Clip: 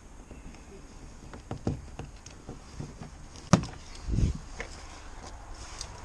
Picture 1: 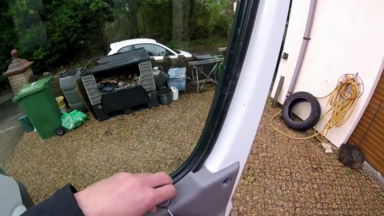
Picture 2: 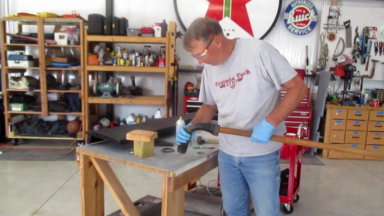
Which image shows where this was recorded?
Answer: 1